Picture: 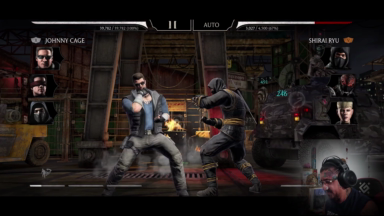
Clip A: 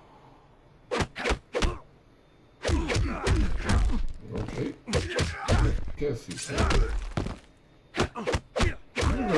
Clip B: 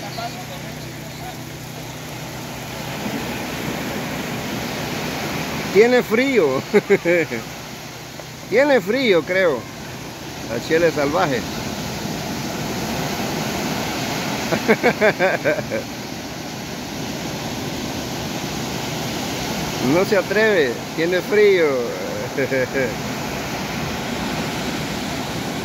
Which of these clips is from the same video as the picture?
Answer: A